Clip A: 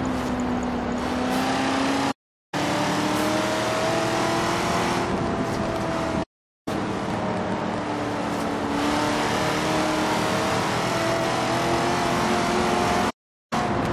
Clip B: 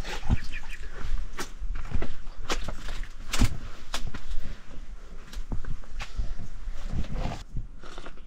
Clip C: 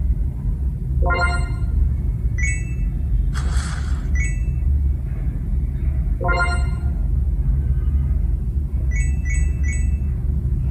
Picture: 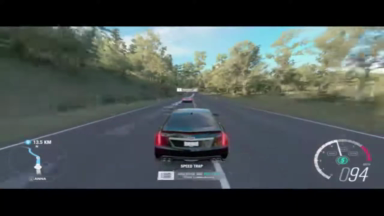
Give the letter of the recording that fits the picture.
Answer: A